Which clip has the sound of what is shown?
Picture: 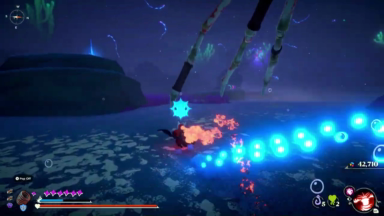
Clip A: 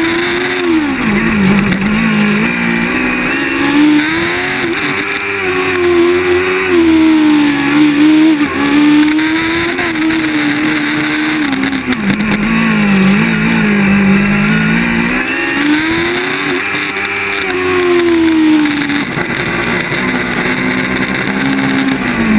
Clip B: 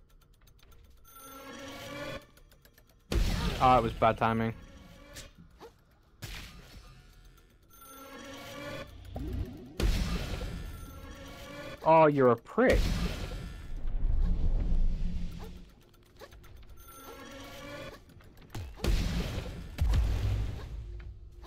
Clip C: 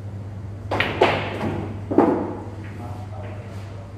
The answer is B